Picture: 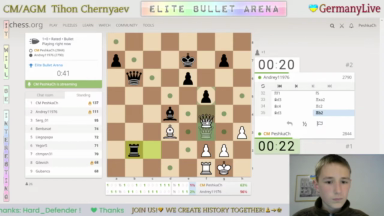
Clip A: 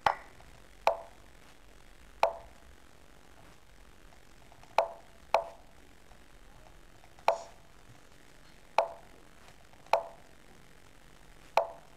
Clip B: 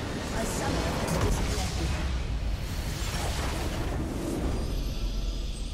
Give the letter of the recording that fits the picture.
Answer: A